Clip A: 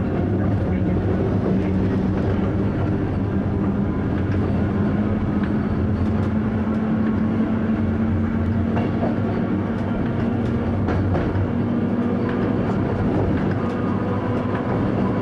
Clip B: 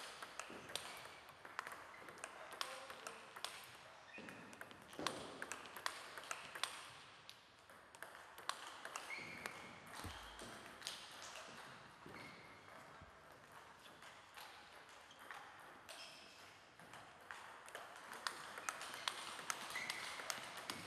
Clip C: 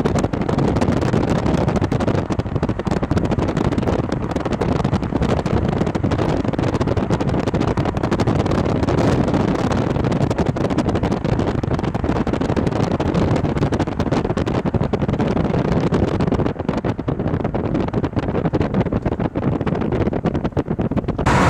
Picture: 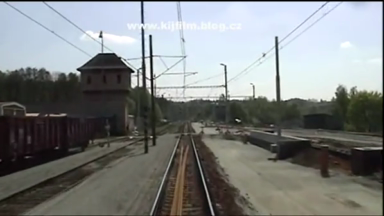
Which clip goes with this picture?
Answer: A